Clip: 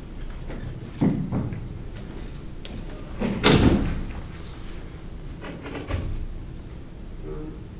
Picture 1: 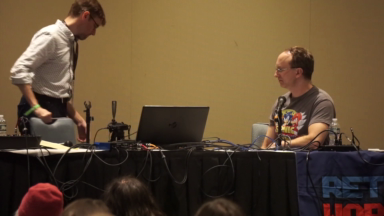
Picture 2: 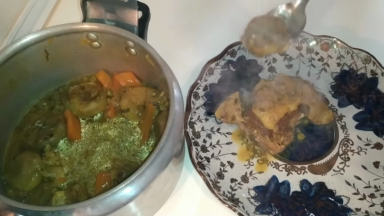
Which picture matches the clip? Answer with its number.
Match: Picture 1